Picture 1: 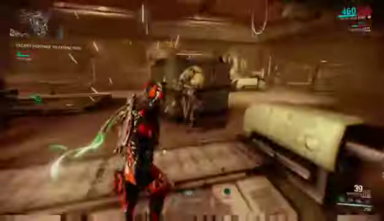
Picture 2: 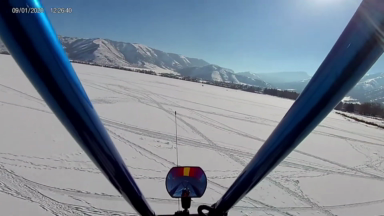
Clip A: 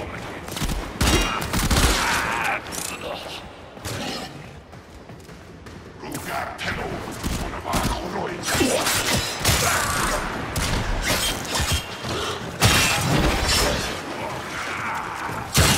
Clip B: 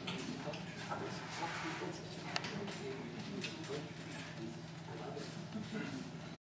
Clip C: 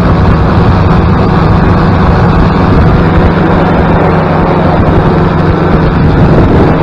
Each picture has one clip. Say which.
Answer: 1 A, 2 C